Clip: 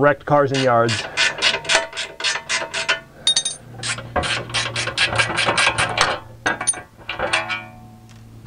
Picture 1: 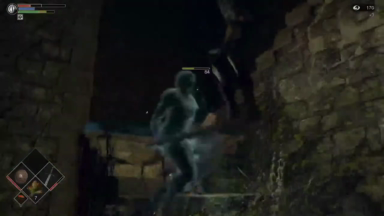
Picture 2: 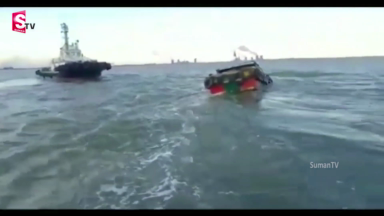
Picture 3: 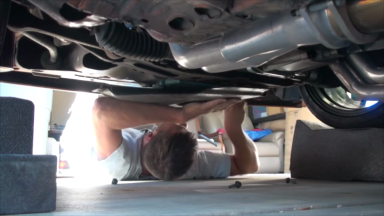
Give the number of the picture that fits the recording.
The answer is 3